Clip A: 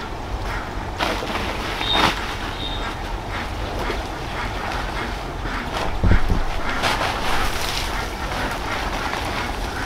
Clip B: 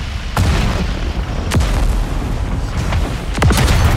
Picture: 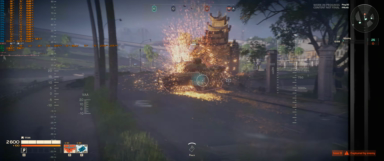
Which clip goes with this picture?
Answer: B